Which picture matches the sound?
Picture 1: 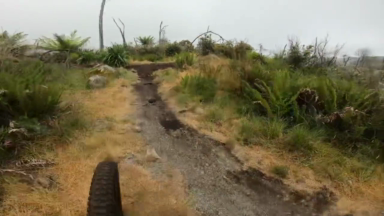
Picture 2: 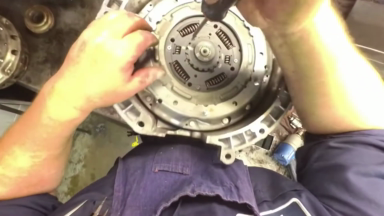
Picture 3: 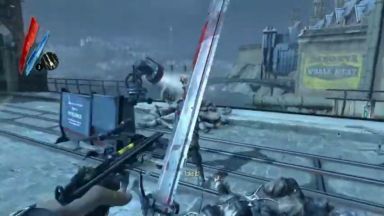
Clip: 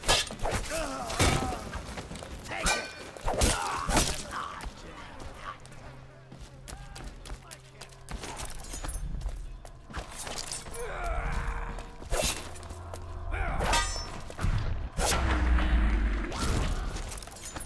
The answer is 3